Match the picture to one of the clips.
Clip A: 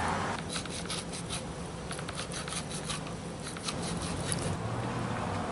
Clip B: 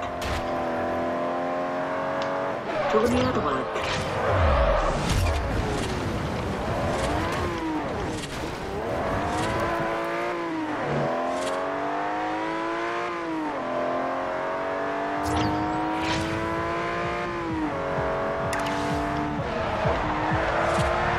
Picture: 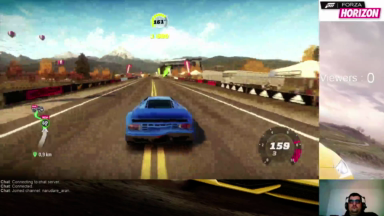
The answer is B